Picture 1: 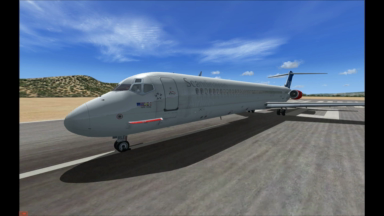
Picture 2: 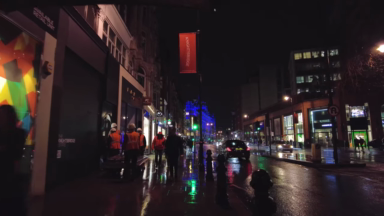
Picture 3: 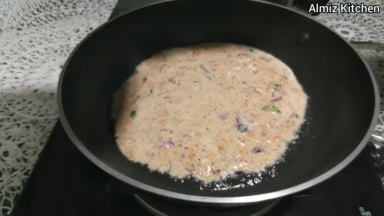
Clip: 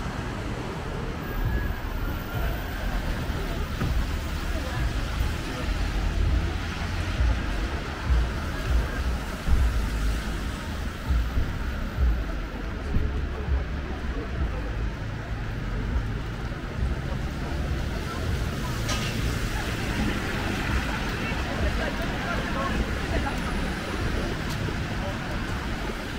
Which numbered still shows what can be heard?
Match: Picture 2